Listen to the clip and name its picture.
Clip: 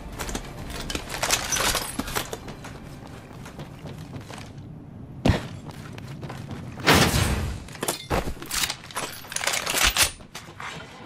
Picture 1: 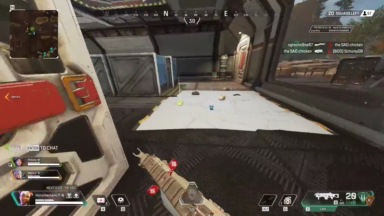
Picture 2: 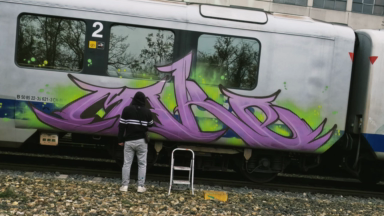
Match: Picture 1